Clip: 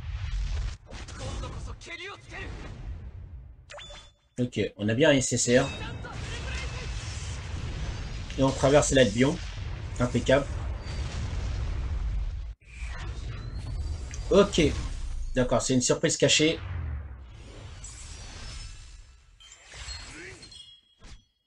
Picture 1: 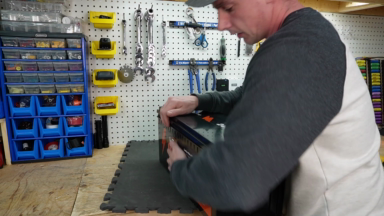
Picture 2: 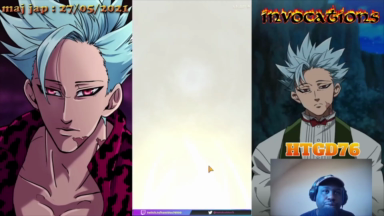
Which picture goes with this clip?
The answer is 2